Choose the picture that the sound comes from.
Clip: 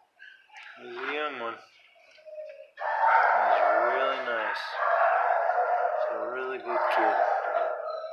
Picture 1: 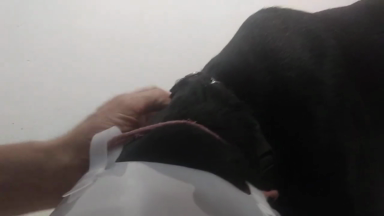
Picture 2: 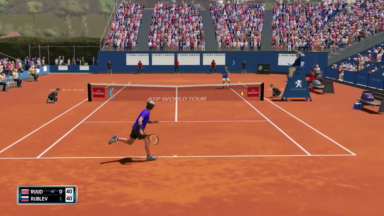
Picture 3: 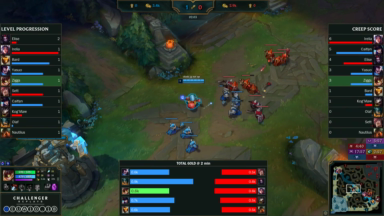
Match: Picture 1